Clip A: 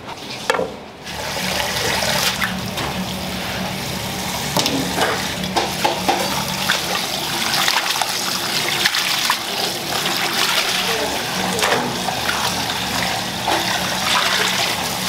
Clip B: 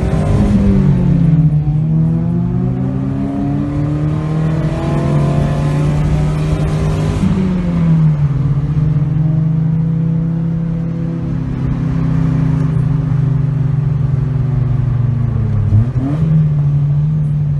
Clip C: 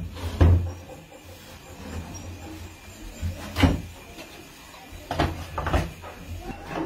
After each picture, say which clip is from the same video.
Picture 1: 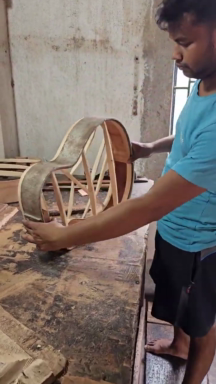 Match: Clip C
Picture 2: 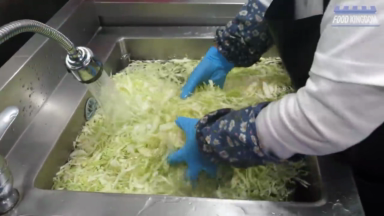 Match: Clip A